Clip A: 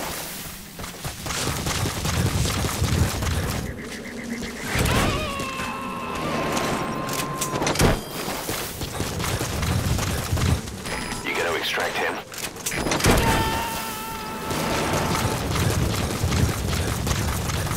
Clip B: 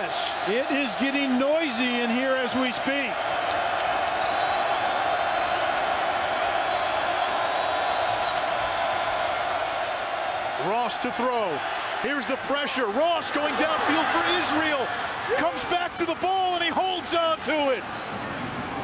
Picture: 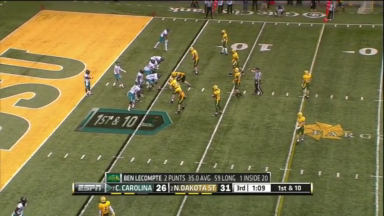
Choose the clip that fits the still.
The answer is B